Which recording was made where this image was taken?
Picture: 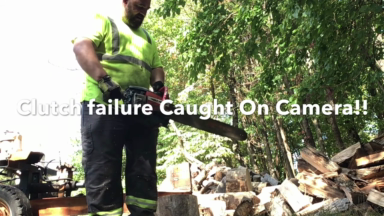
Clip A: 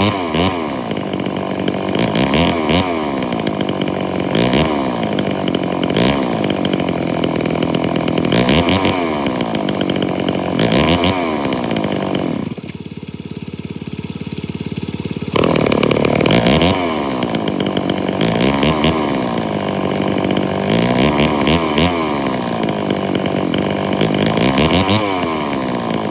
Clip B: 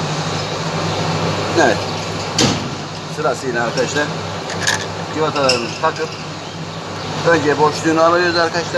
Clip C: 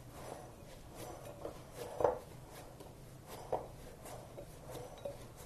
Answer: A